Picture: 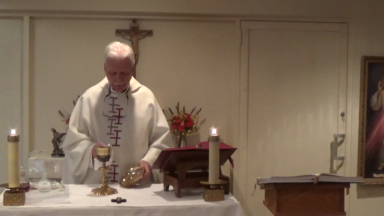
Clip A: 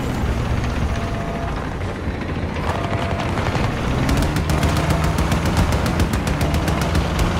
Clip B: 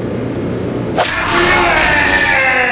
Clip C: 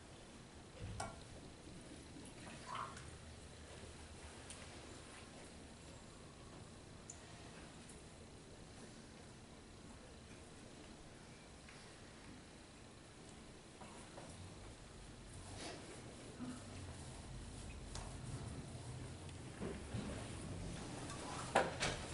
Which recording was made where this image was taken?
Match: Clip C